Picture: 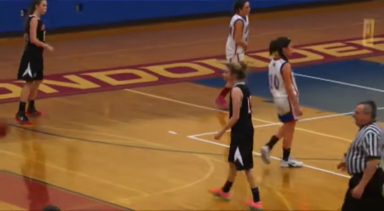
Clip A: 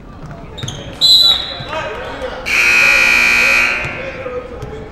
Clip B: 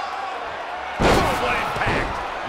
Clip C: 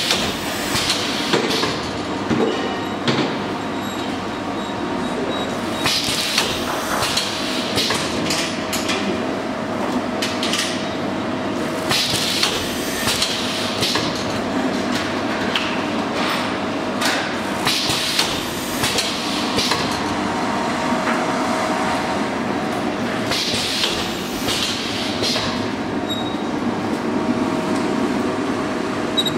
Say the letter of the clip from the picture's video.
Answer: A